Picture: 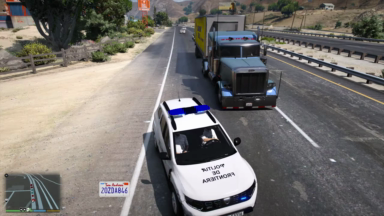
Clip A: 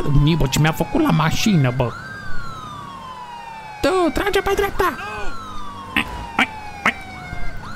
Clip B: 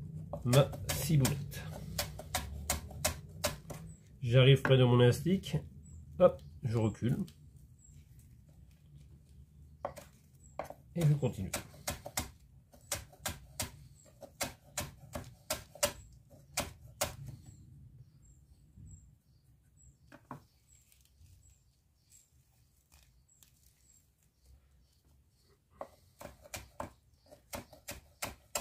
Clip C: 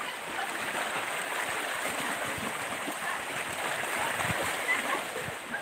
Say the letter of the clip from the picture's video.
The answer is A